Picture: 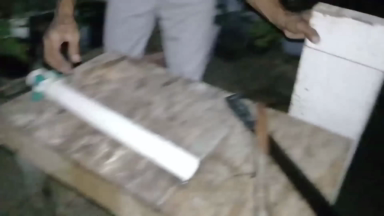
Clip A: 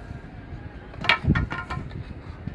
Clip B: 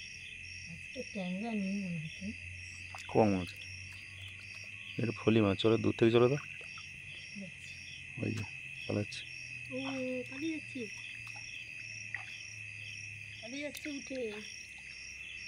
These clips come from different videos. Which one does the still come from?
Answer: A